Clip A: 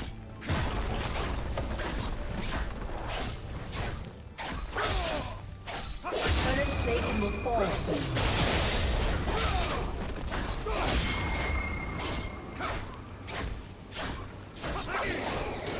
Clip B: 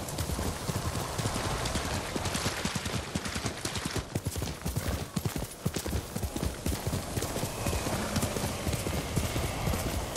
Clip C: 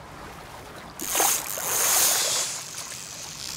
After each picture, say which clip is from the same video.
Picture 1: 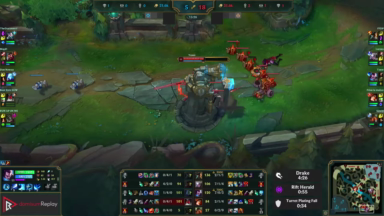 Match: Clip A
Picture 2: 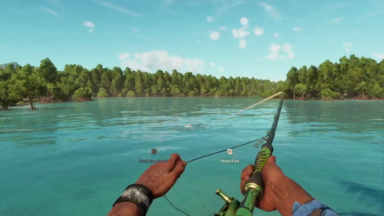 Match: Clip C